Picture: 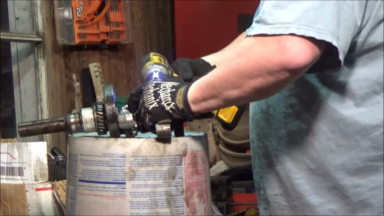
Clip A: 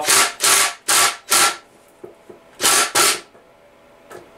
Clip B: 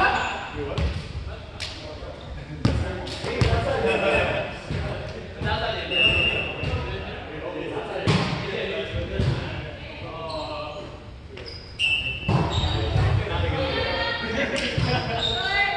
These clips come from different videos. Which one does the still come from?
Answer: A